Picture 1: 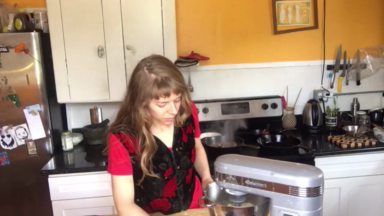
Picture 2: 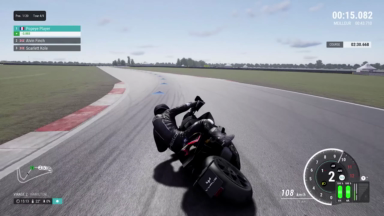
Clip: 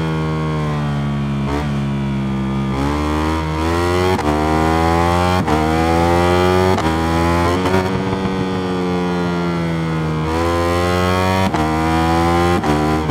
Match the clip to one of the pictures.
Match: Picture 2